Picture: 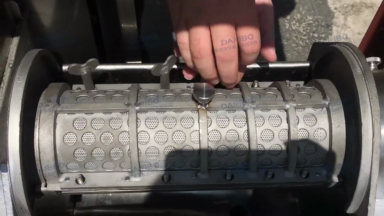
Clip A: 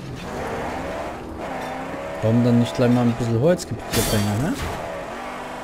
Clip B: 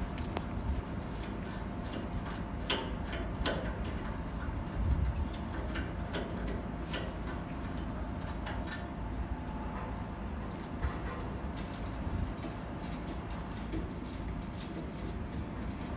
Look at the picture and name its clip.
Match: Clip B